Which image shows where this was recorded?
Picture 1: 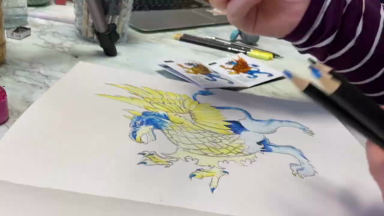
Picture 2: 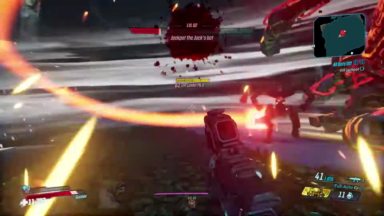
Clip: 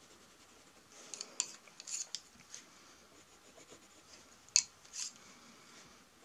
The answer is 1